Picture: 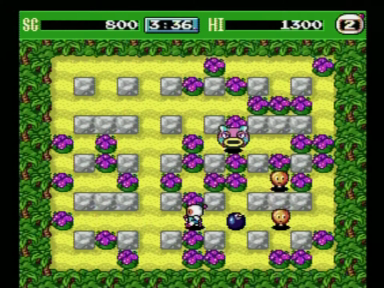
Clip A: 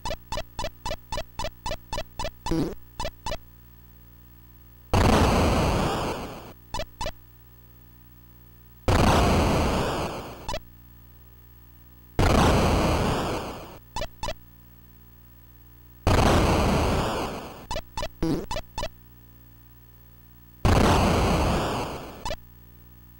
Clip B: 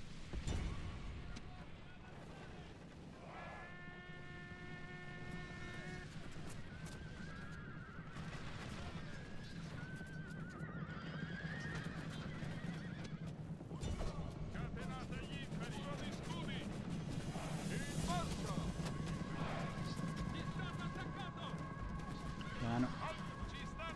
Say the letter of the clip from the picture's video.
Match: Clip A